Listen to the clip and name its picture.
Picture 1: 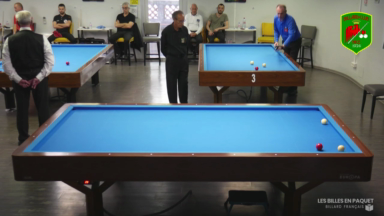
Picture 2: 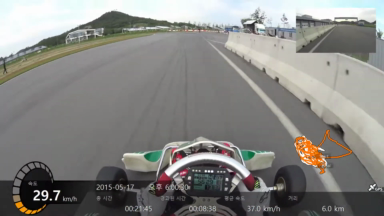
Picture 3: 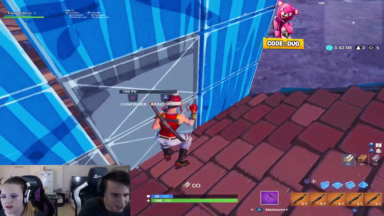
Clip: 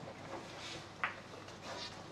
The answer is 1